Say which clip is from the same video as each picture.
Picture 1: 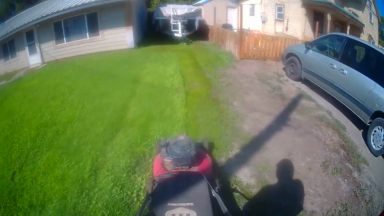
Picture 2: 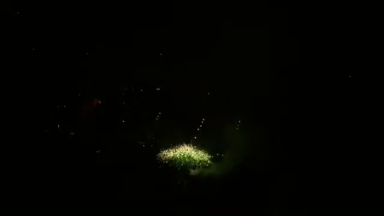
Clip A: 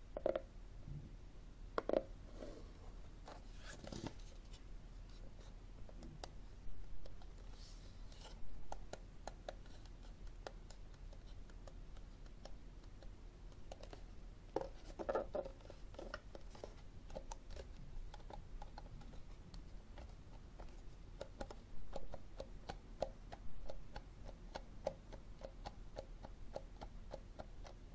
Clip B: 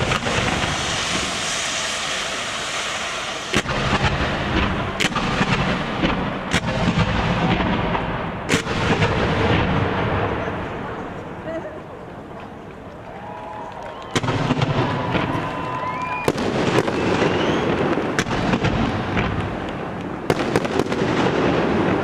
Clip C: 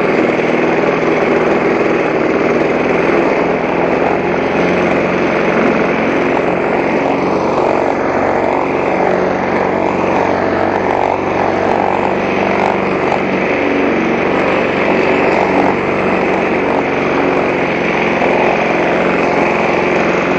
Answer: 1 C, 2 B